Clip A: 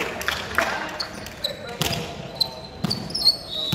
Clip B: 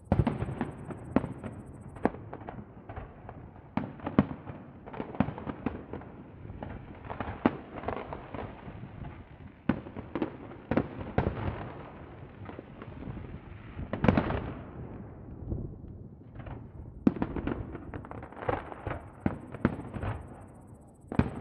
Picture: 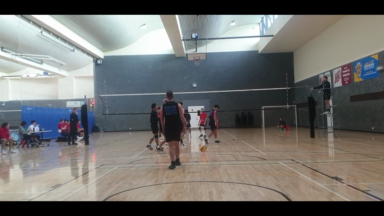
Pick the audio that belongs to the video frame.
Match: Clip A